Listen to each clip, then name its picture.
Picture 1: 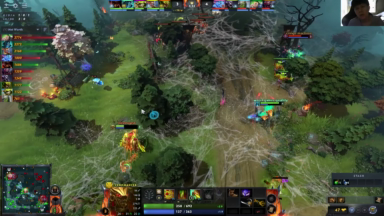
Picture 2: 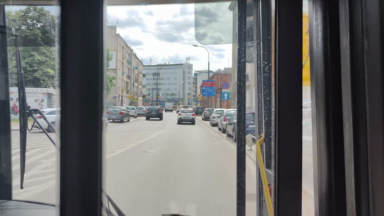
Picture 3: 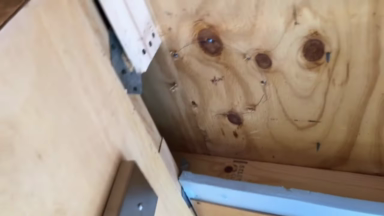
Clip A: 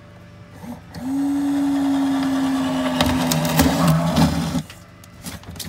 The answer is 3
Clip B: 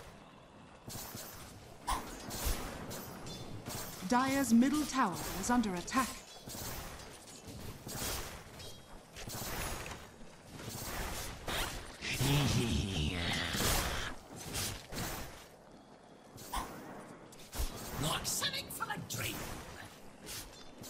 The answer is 1